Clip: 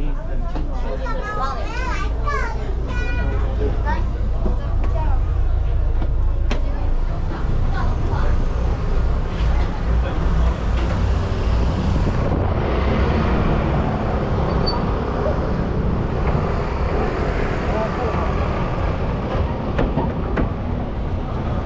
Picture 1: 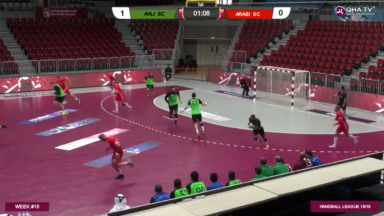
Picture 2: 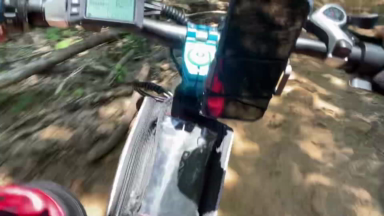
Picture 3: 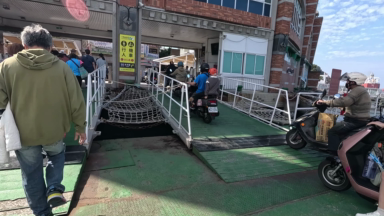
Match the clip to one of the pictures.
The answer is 3